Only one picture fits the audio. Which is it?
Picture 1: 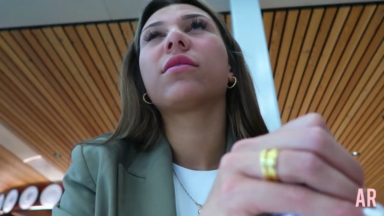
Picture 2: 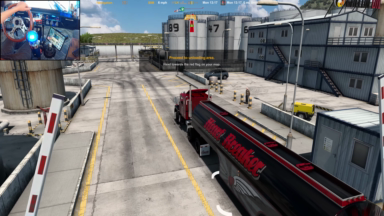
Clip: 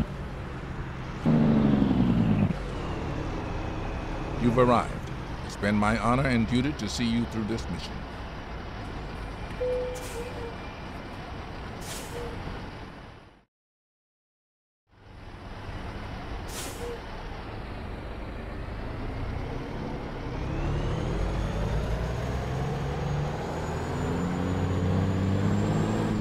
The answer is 2